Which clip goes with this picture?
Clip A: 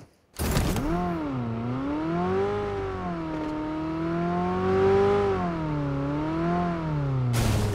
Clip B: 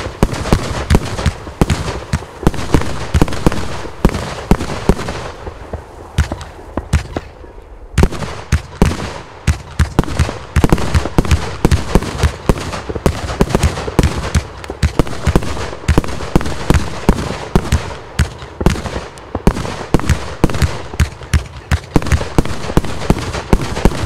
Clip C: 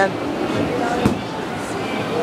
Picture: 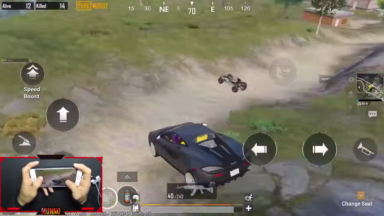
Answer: A